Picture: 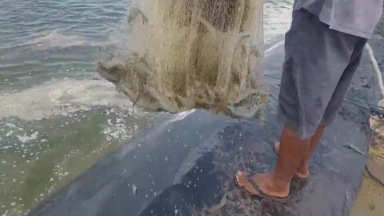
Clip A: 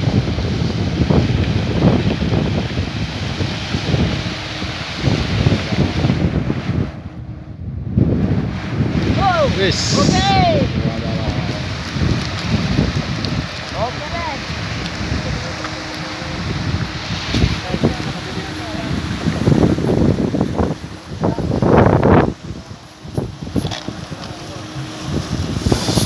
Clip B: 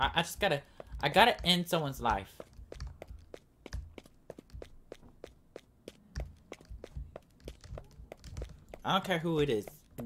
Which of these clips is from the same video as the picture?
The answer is A